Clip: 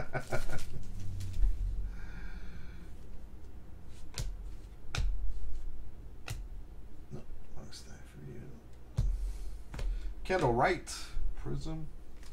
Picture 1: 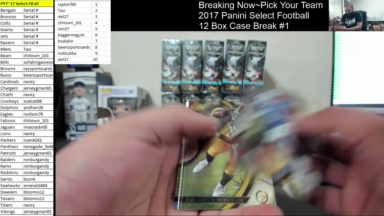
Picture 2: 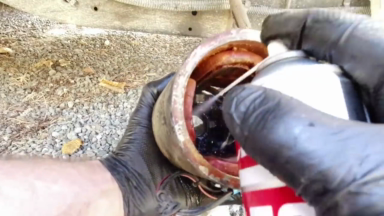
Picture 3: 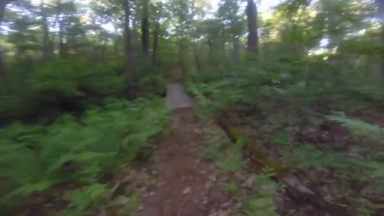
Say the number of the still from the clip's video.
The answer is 1